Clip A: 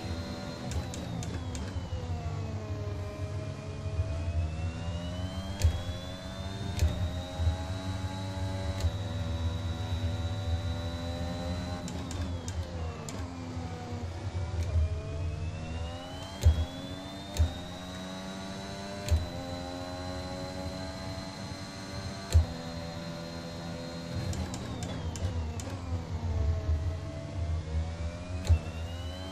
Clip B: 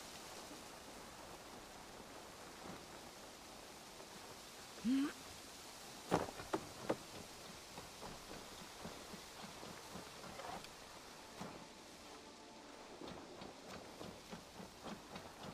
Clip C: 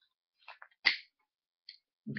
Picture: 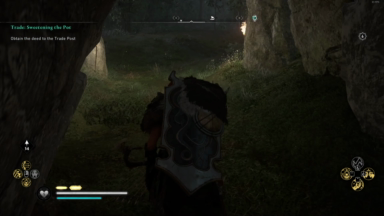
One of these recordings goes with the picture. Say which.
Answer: B